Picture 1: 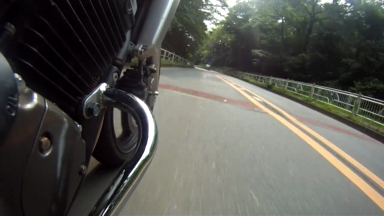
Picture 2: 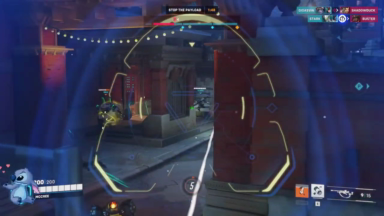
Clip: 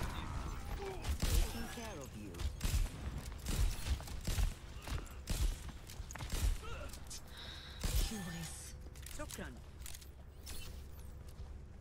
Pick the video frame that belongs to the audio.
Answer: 2